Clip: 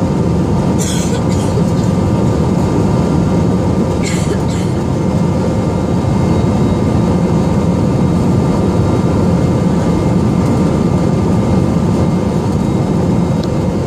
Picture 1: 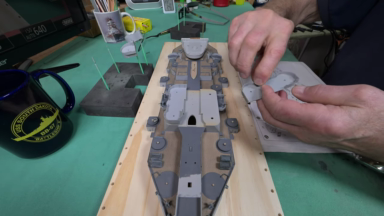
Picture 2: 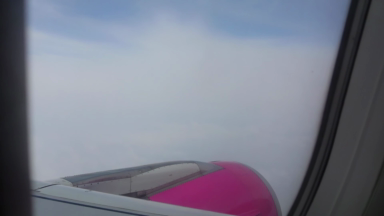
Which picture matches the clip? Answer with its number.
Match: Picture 2